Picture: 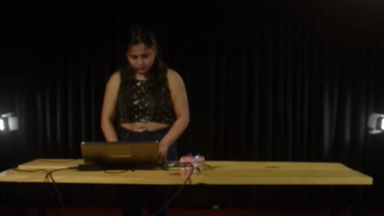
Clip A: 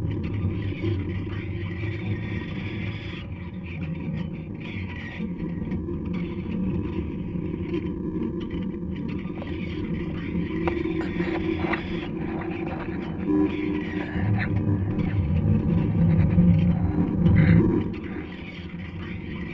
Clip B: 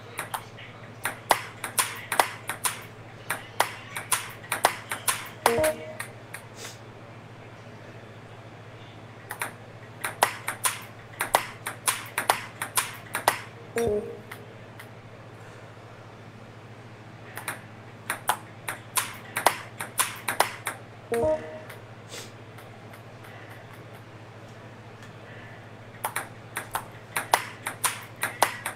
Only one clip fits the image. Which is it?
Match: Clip A